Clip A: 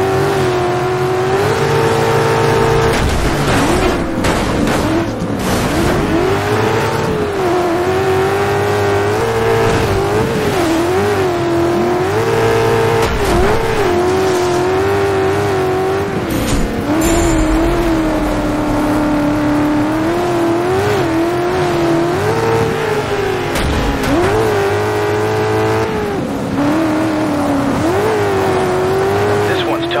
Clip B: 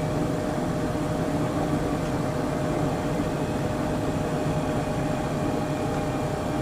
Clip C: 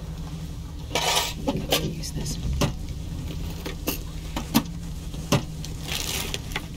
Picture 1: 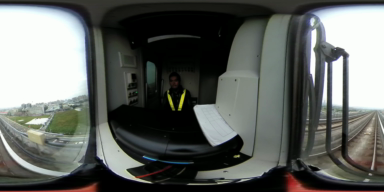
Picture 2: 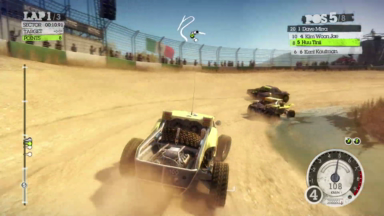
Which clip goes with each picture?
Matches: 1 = B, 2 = A